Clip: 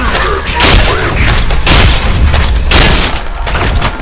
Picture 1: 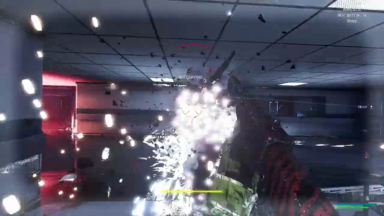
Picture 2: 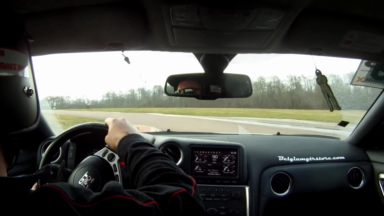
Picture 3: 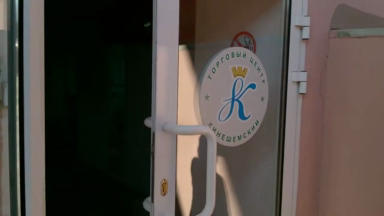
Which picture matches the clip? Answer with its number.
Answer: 1